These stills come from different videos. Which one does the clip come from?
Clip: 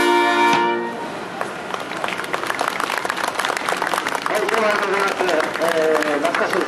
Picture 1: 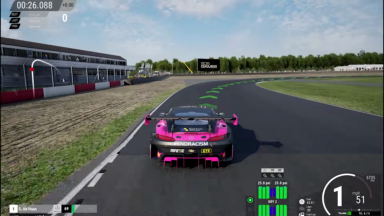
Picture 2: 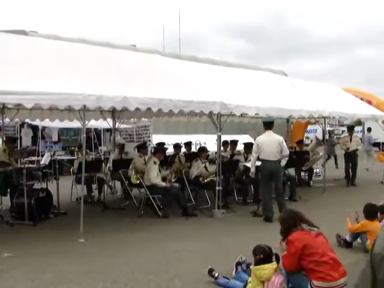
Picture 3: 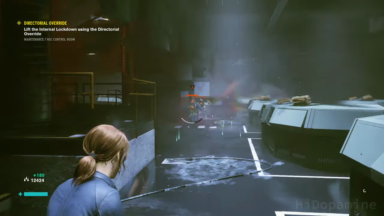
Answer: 2